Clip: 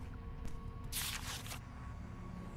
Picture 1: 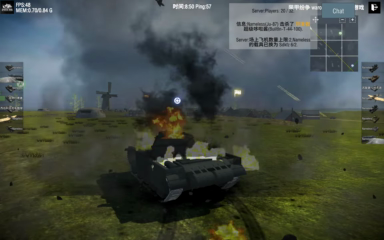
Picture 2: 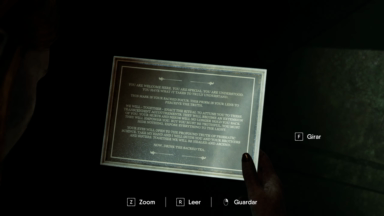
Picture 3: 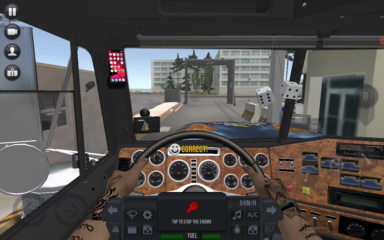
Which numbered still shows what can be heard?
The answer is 2